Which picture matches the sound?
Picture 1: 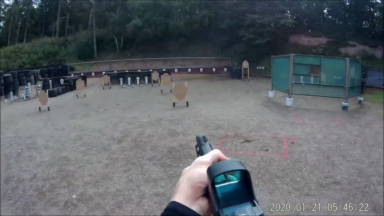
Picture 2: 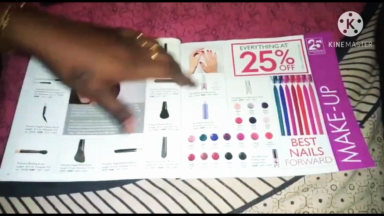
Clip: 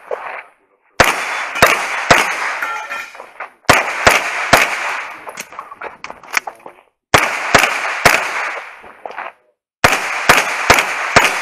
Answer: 1